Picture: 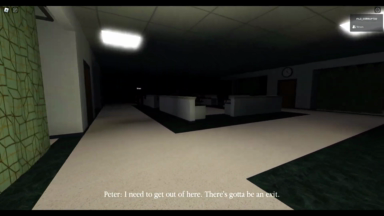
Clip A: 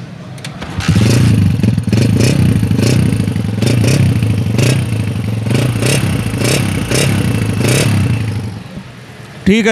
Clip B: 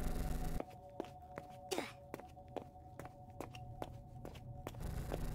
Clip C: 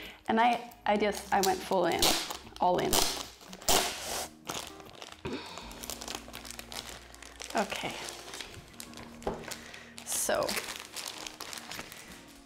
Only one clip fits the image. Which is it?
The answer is B